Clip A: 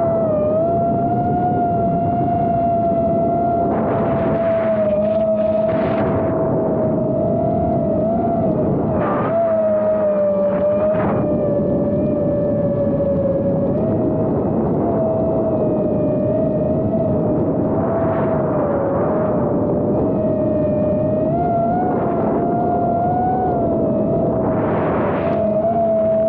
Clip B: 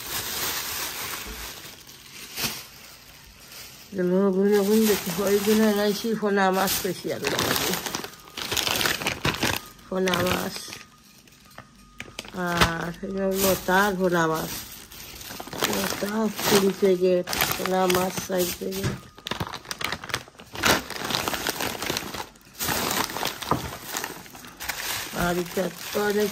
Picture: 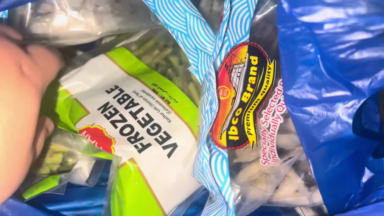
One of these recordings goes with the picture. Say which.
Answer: B